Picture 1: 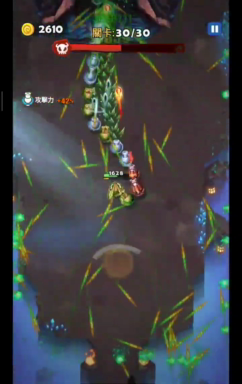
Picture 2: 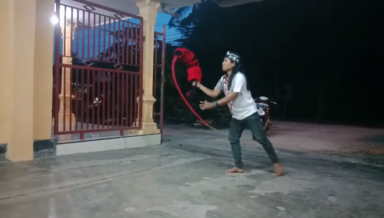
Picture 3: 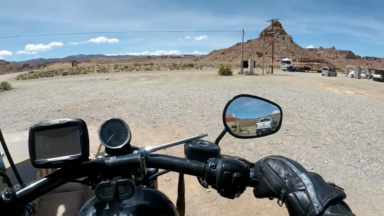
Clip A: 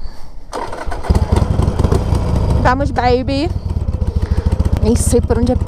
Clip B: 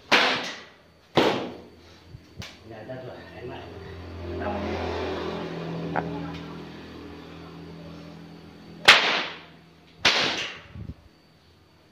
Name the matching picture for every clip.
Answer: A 3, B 2